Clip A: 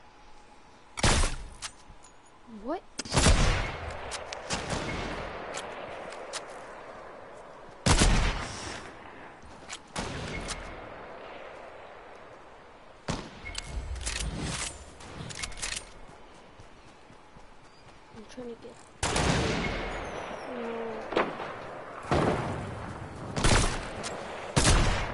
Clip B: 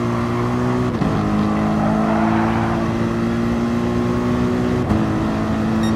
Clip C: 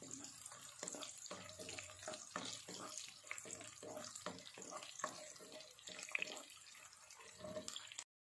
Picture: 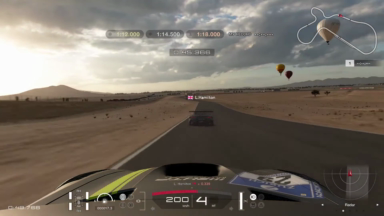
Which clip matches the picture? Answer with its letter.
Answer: B